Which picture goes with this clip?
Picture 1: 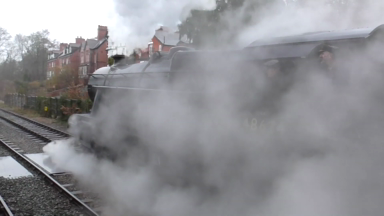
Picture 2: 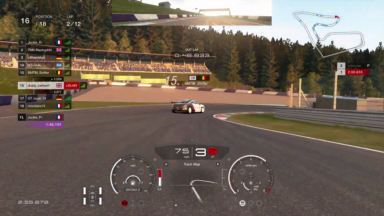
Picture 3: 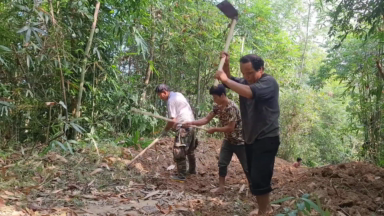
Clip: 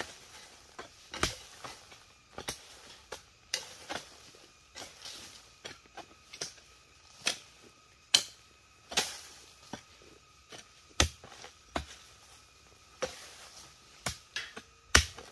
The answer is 3